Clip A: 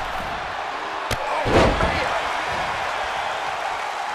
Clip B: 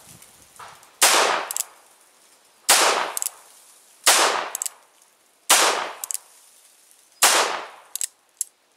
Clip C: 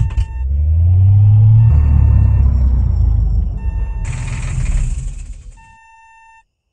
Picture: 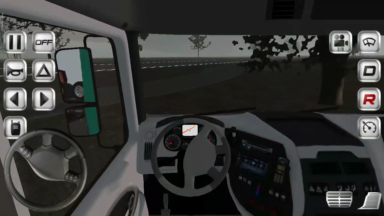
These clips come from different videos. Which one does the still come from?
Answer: C